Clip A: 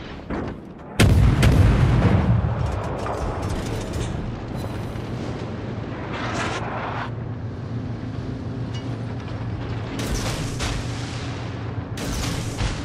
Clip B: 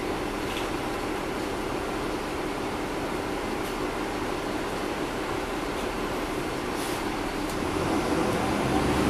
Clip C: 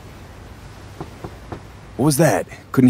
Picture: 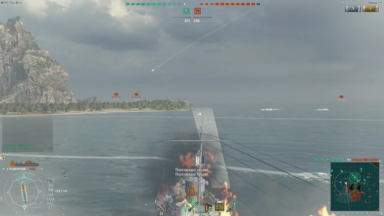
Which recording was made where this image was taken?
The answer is A